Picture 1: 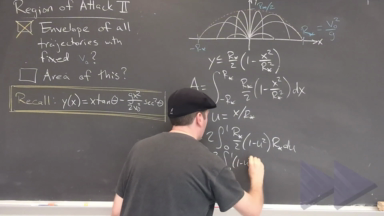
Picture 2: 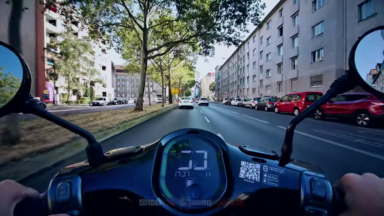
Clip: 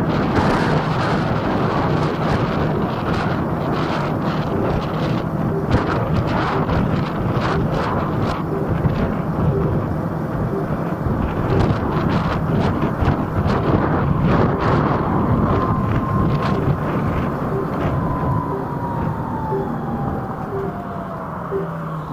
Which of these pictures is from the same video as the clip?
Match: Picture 2